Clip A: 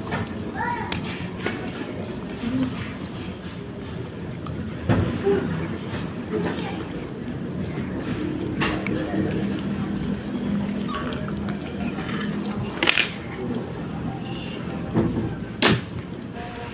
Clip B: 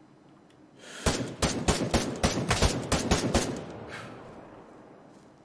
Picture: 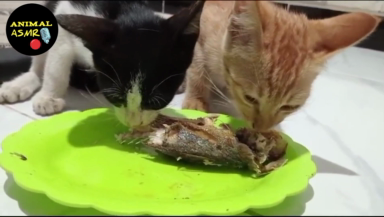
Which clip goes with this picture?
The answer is A